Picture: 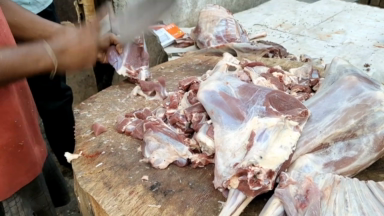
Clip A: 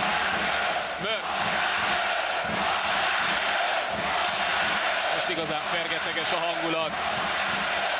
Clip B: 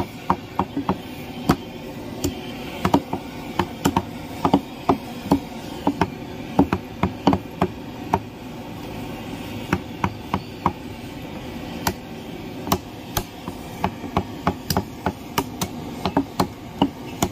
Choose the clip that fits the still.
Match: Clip B